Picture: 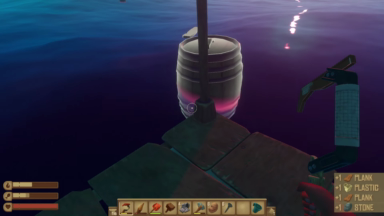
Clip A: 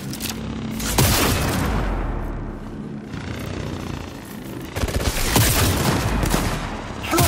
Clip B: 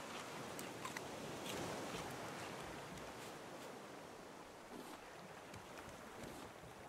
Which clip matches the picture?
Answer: B